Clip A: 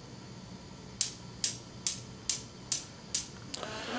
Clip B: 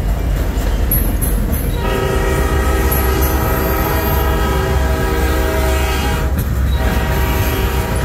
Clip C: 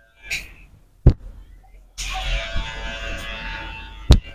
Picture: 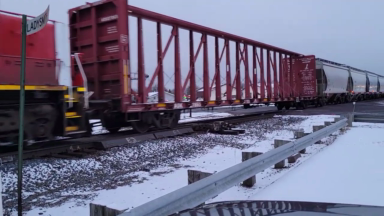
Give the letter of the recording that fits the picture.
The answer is B